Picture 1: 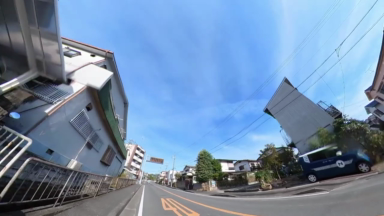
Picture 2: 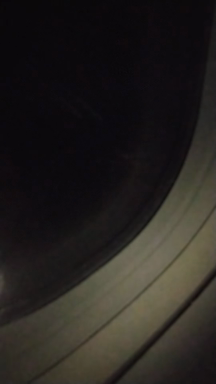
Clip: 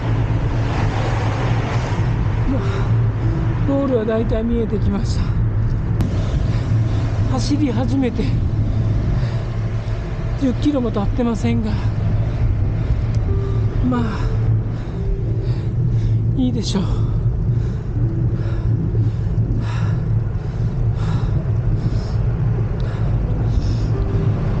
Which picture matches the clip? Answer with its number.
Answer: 1